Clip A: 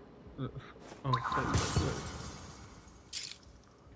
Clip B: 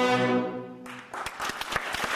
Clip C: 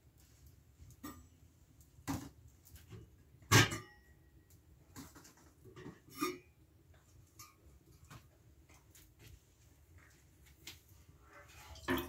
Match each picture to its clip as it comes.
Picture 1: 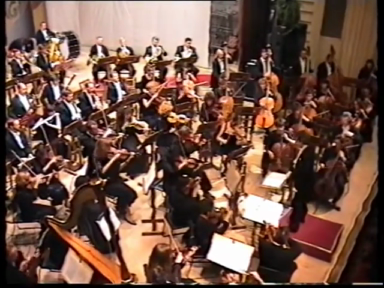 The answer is B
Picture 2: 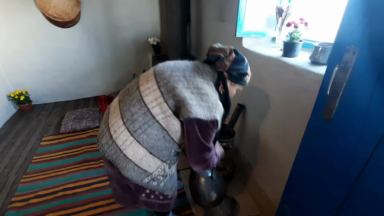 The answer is C